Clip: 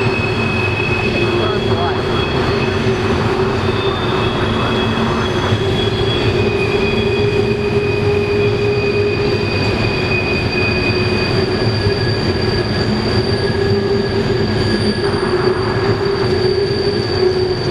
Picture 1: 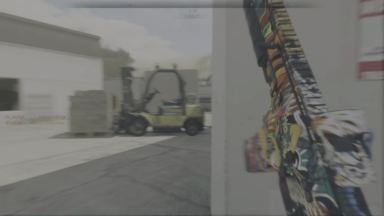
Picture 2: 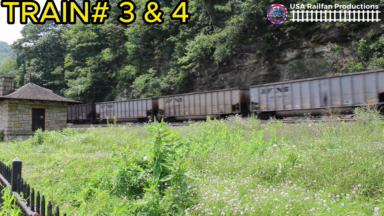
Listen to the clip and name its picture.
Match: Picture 2